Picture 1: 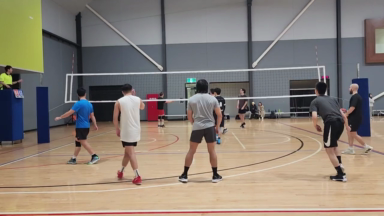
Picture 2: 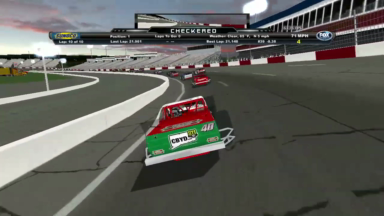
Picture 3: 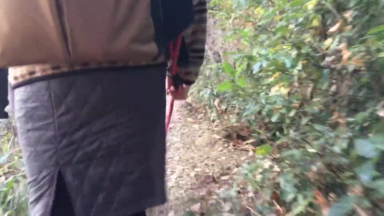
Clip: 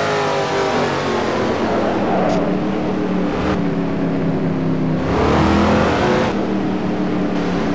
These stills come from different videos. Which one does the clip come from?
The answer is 2